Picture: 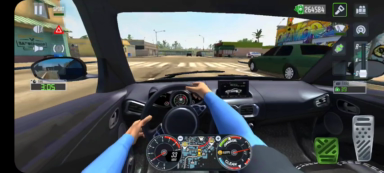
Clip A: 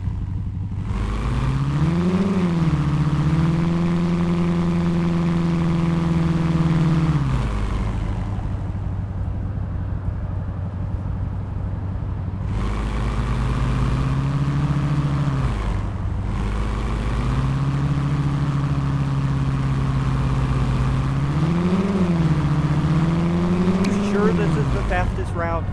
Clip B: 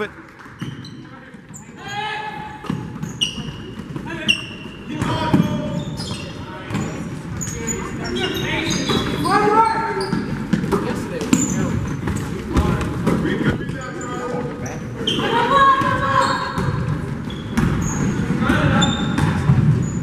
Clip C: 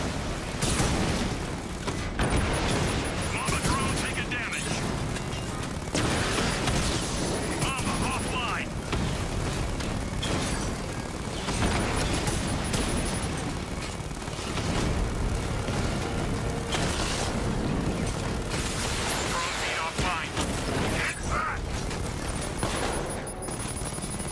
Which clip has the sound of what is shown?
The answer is A